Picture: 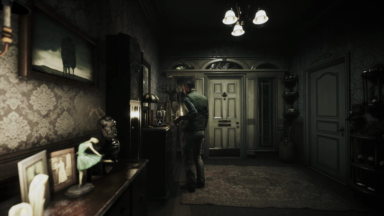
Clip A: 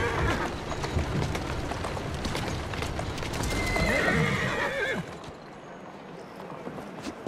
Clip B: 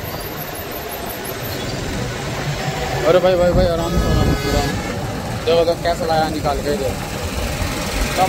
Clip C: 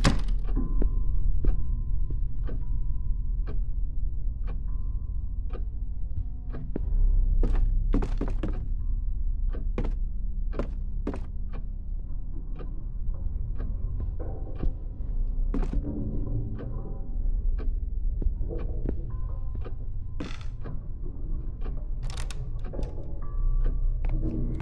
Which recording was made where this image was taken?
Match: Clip C